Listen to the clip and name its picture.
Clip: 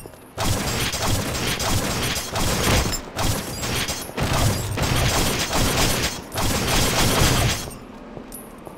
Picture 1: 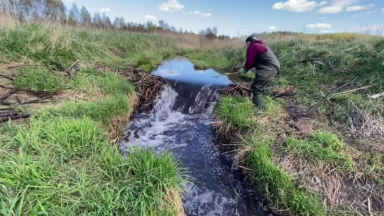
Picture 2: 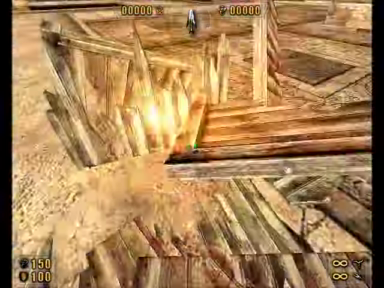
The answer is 2